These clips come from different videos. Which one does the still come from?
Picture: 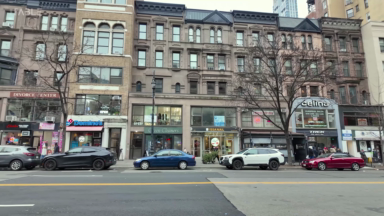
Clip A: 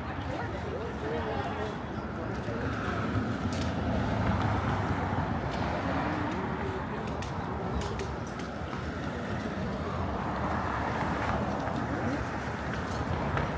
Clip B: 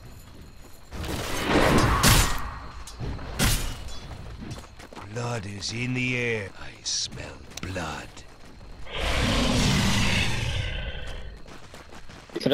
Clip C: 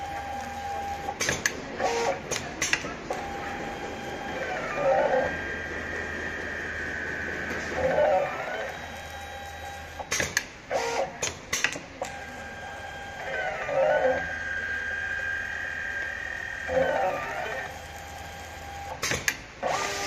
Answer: A